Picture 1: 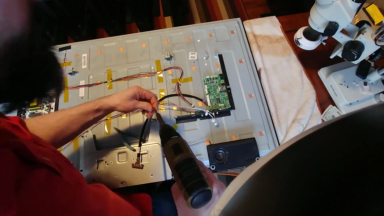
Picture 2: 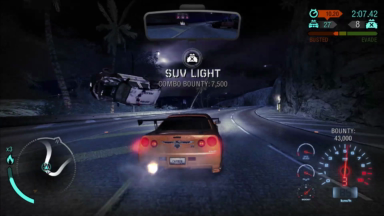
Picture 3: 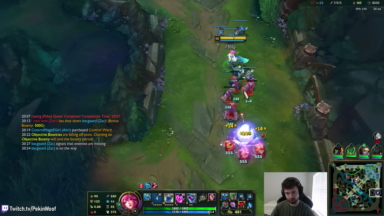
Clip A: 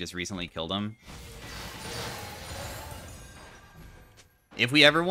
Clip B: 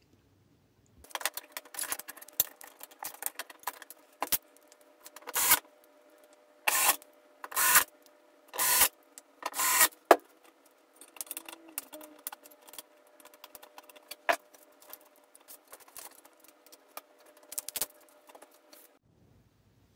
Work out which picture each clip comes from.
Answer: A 3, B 1